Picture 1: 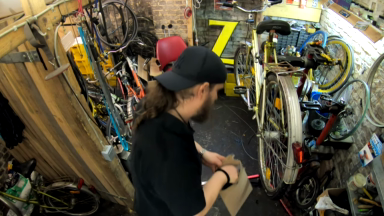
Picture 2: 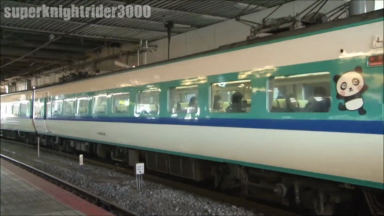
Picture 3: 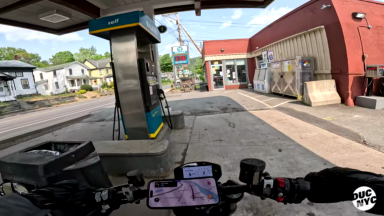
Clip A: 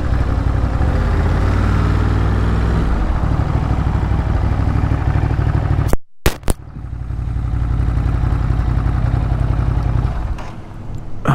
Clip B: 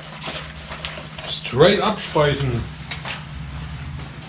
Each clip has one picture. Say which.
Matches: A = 3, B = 1